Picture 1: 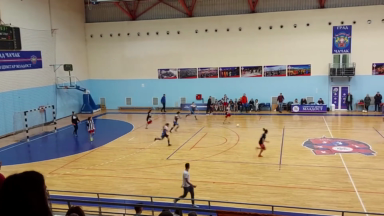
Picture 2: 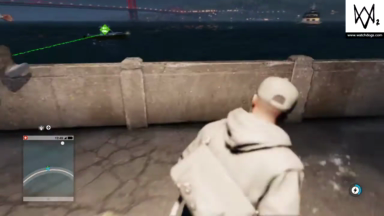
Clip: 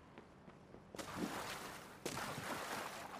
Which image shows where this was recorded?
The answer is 2